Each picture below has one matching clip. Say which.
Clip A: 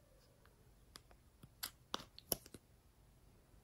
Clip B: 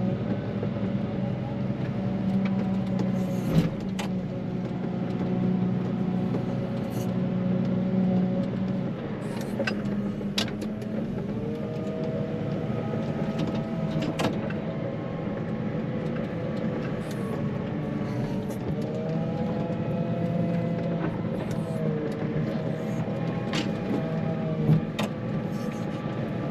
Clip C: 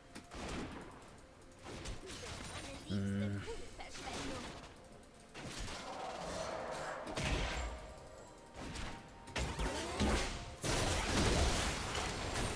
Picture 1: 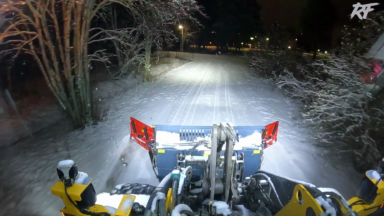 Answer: B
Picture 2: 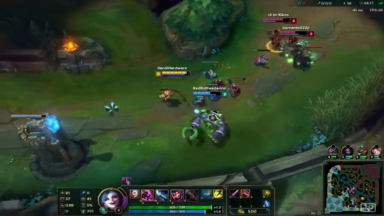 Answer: C